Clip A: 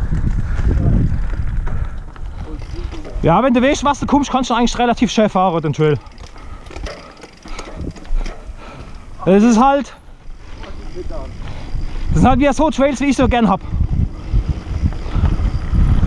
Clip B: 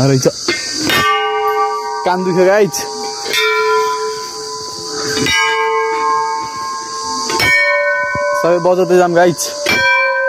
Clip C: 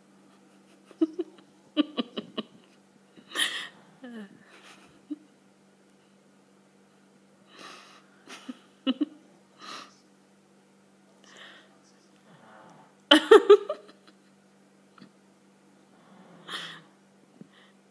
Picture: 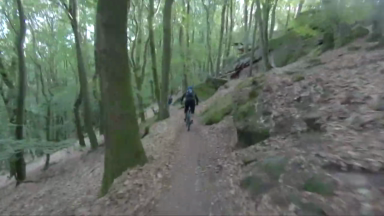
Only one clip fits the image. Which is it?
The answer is A